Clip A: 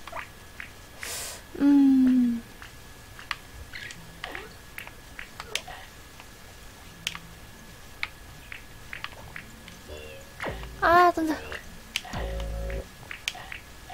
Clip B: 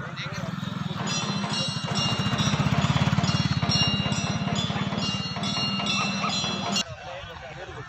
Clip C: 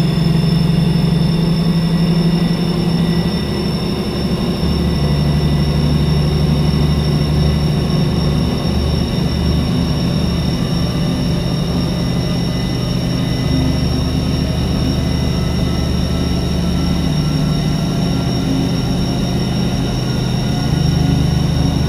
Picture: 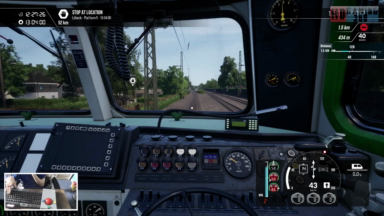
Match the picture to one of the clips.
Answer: C